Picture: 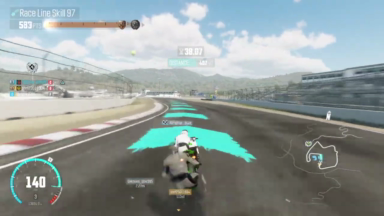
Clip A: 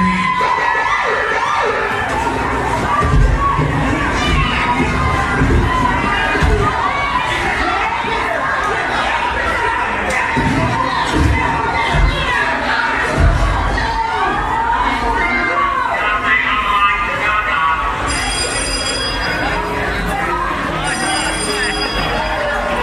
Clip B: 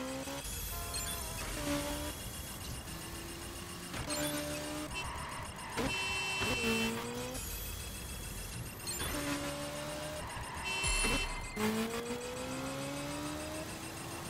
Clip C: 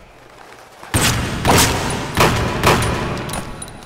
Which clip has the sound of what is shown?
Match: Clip B